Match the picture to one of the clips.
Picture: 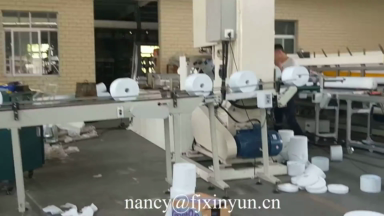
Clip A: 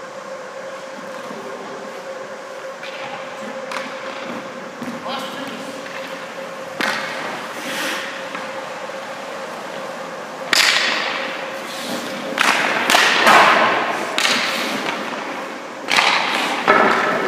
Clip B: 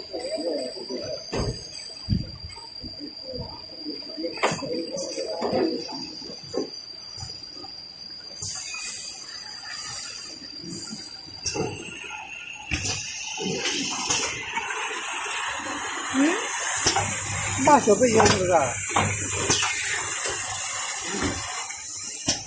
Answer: B